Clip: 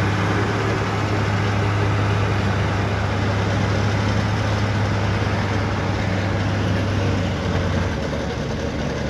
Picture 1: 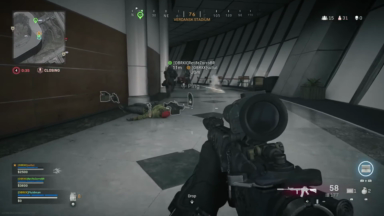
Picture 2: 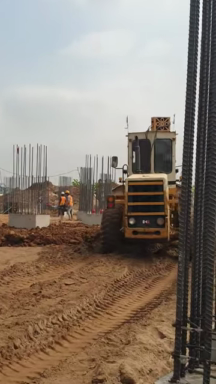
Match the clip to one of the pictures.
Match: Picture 2